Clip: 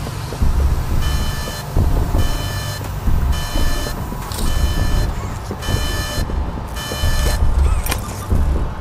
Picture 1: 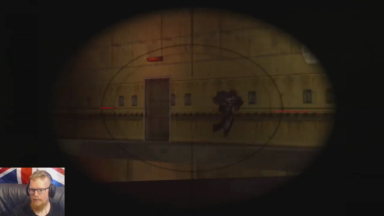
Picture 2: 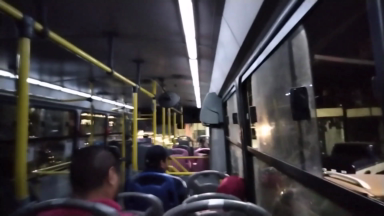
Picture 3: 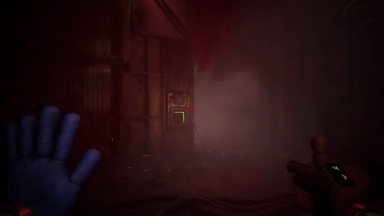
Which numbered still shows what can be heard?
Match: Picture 3